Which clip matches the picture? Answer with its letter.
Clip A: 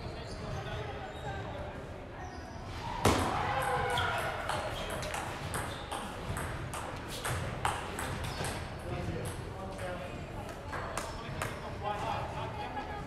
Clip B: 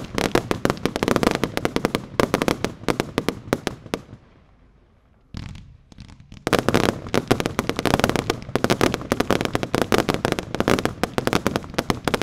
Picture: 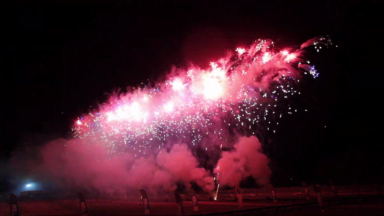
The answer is B